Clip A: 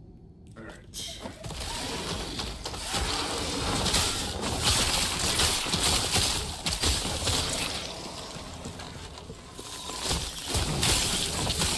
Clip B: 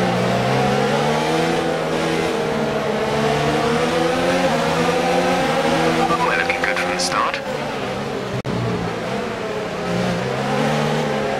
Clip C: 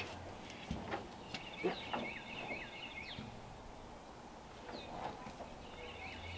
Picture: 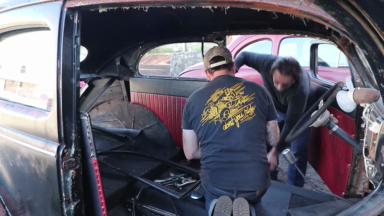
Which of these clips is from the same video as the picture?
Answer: C